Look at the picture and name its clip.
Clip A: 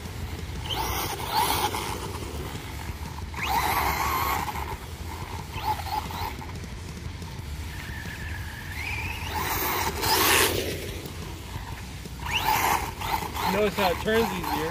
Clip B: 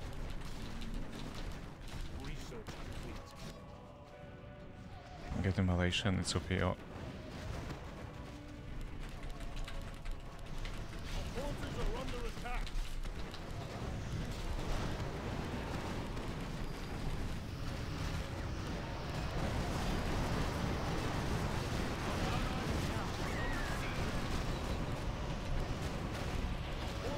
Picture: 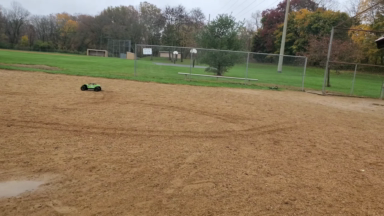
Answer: A